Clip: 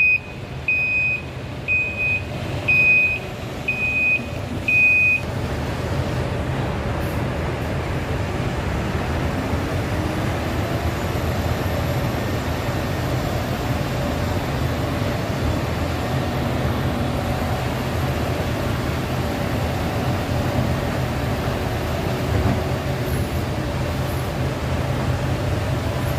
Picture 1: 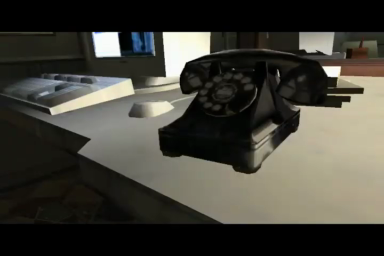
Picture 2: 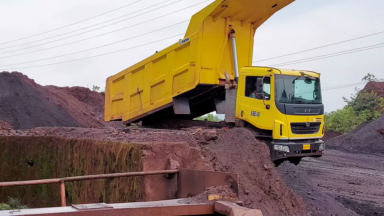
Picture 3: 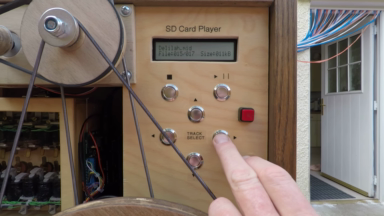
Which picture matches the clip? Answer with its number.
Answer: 2